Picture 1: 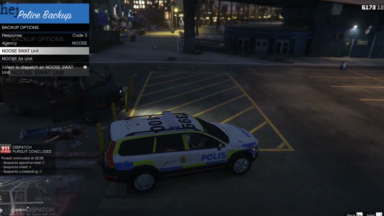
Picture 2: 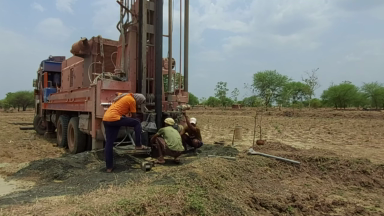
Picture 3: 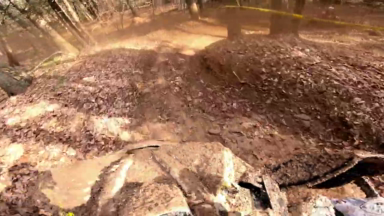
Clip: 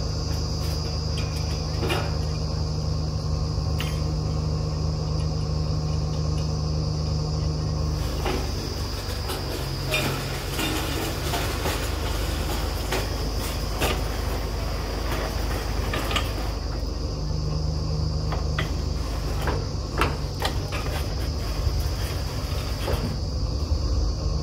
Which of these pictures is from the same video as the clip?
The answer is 2